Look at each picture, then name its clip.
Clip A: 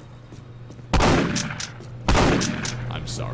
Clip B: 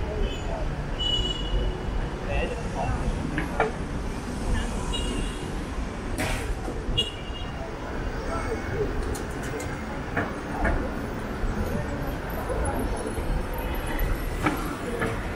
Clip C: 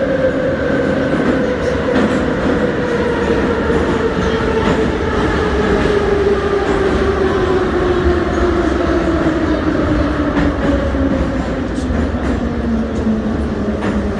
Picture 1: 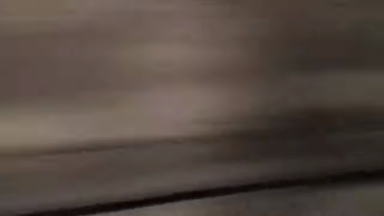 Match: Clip C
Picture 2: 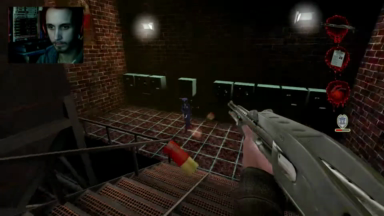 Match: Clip A